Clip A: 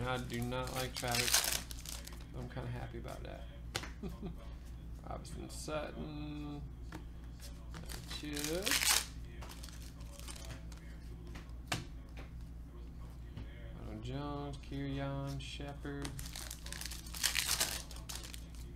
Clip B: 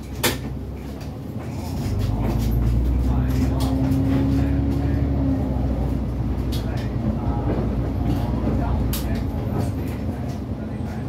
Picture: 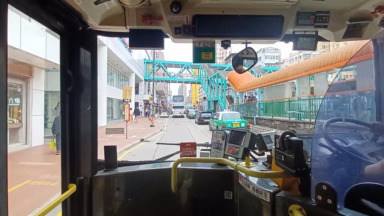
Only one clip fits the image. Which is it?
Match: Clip B